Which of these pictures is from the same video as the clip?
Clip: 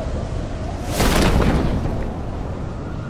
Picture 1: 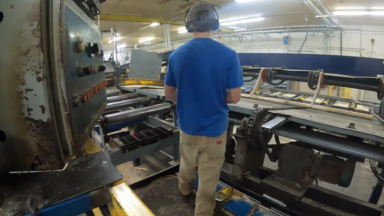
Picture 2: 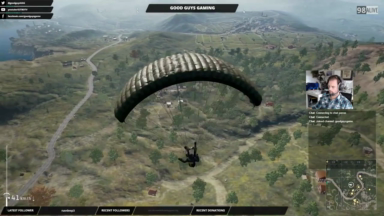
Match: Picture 2